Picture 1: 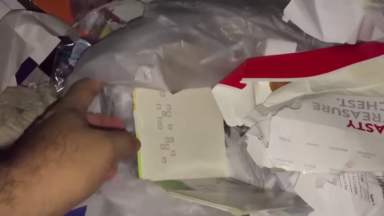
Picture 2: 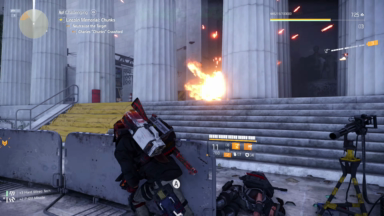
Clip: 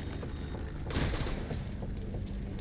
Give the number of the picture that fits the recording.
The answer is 2